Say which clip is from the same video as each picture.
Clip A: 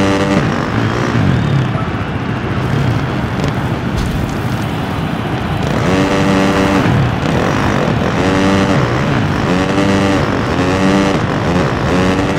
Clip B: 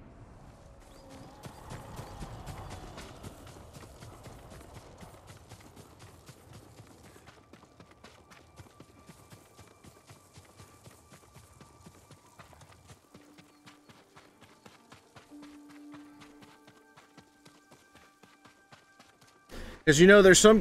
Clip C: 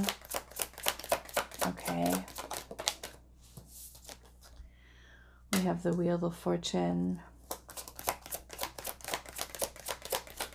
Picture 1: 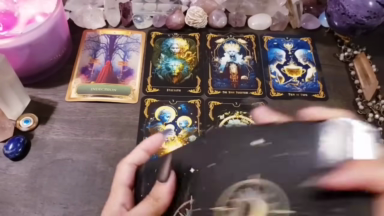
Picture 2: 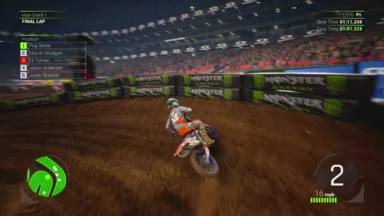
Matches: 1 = C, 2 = A